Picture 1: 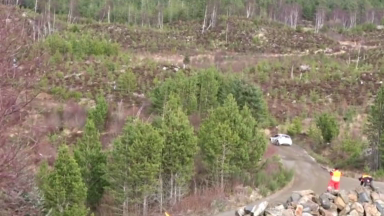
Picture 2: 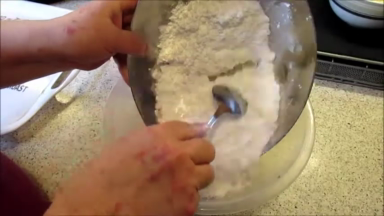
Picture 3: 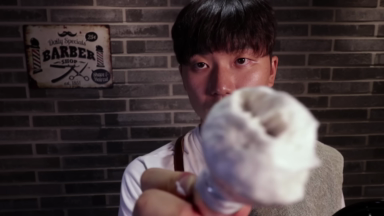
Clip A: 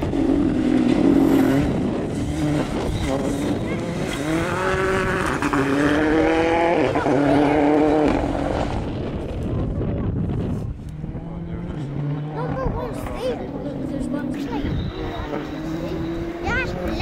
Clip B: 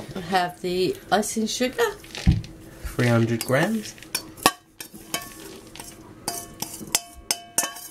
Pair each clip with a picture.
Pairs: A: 1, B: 2